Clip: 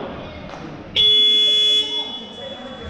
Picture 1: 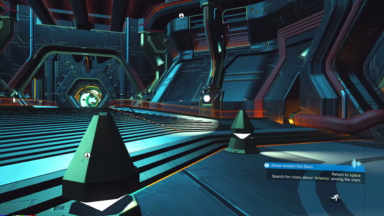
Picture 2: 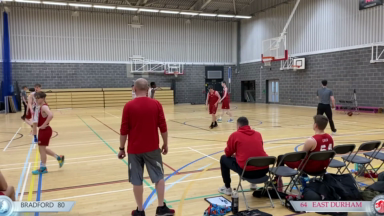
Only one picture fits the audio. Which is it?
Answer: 2